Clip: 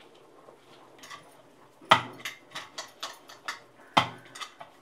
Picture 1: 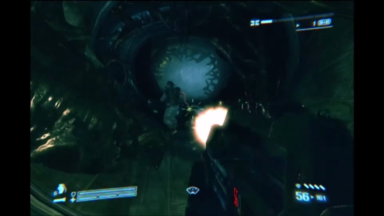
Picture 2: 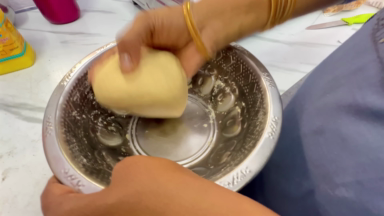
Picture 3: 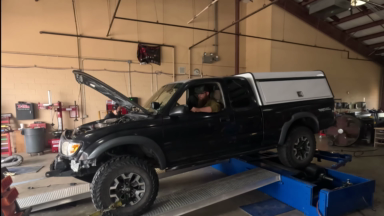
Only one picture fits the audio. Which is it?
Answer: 2